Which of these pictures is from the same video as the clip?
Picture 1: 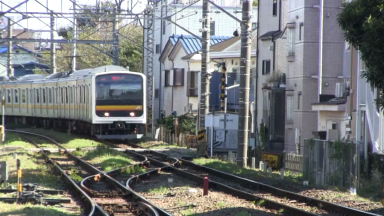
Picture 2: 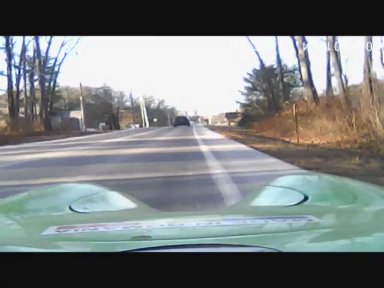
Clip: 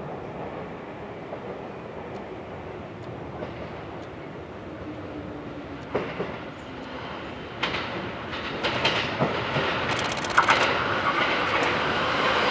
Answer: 1